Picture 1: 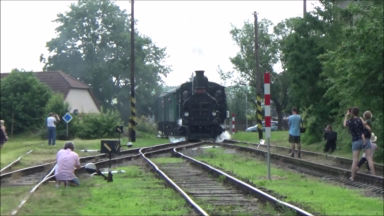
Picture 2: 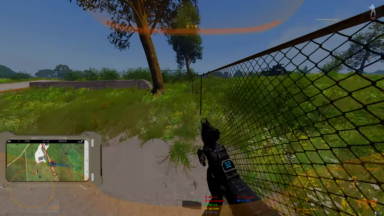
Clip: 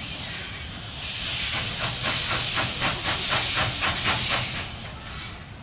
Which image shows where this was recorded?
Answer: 1